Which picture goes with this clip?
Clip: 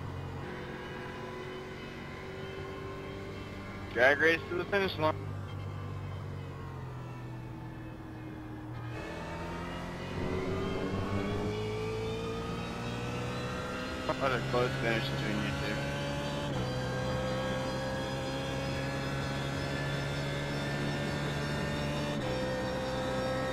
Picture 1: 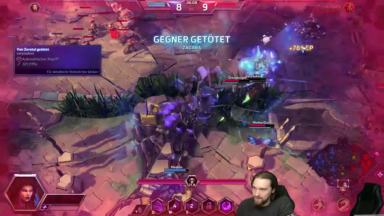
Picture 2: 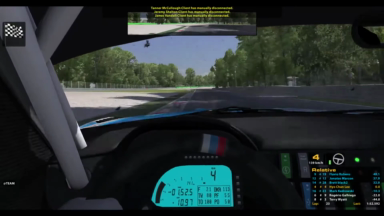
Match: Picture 2